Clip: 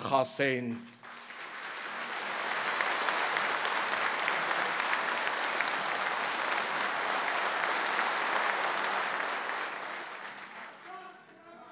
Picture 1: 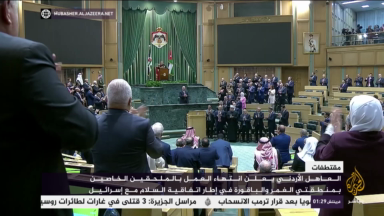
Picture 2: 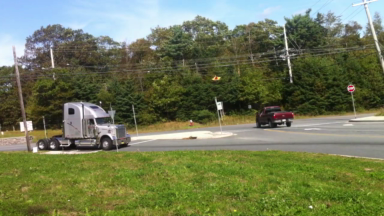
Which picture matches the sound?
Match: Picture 1